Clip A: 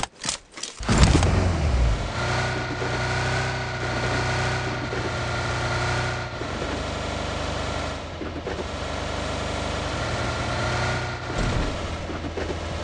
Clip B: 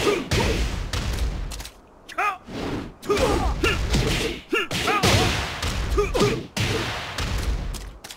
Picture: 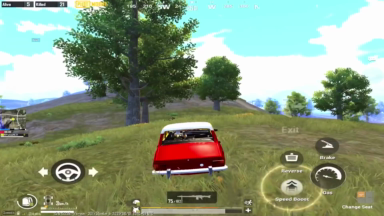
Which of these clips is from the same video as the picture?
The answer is A